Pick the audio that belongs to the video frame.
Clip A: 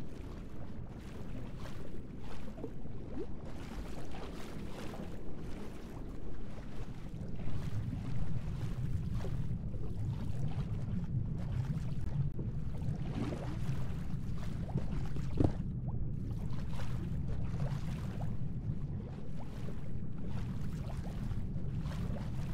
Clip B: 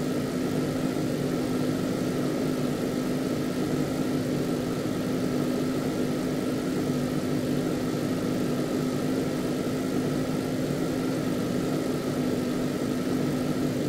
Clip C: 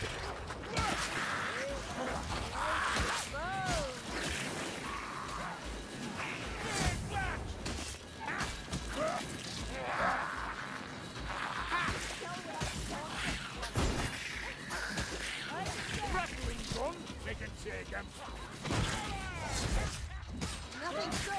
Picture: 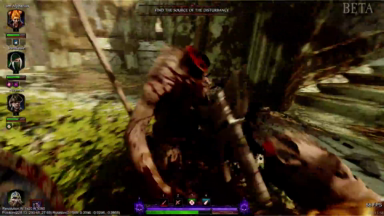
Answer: C